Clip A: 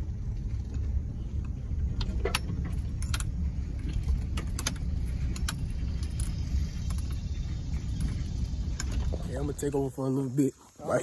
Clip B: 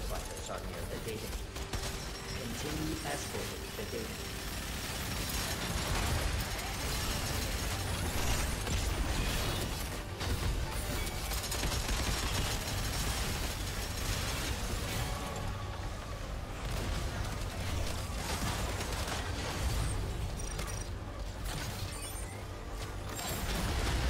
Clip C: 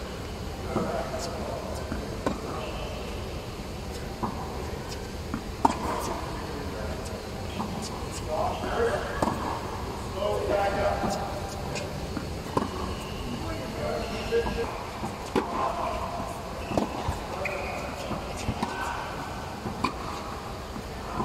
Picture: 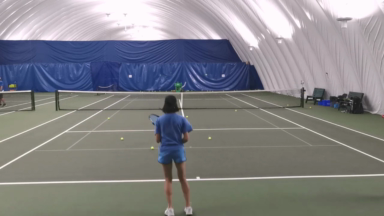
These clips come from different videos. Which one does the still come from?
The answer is C